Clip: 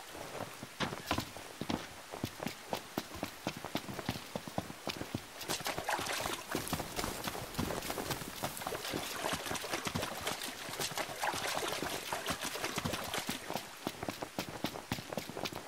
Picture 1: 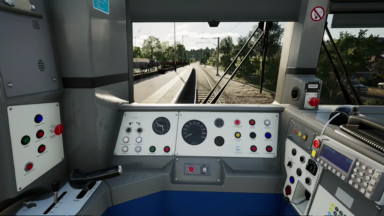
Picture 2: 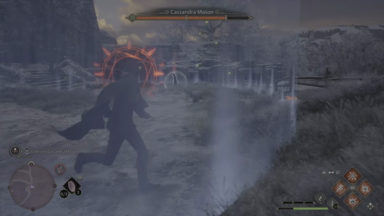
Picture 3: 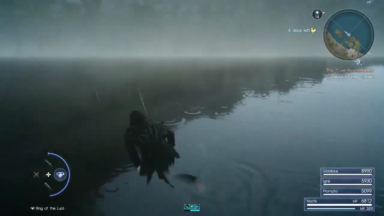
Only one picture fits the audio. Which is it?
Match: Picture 3